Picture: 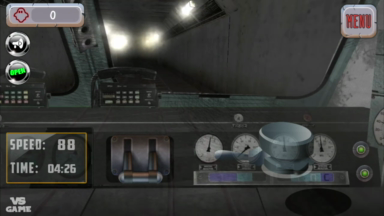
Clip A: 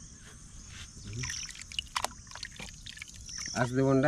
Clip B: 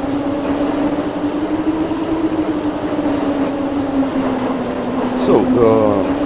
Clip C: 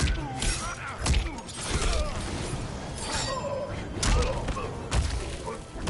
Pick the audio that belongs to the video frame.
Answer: B